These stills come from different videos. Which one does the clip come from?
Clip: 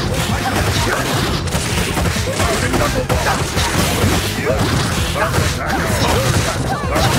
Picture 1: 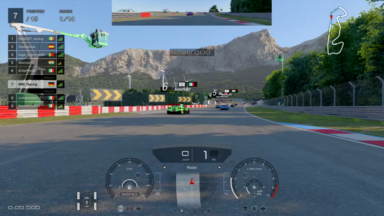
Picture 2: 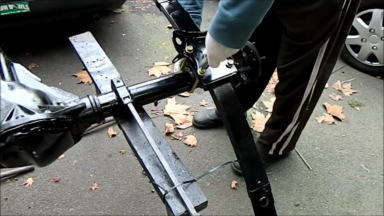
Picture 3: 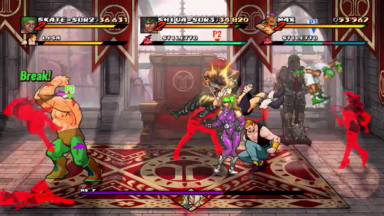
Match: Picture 3